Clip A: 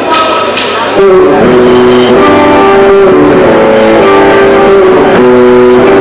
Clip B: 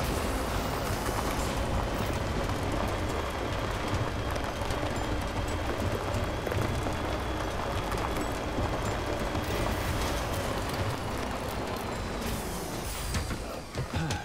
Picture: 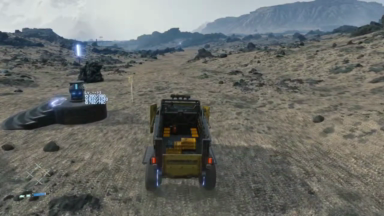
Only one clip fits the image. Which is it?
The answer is B